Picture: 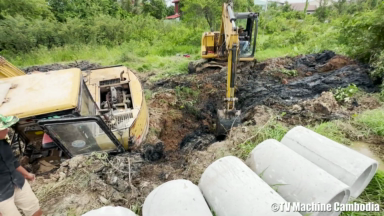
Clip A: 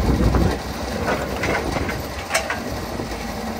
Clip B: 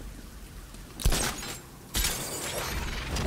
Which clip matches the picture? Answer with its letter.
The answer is A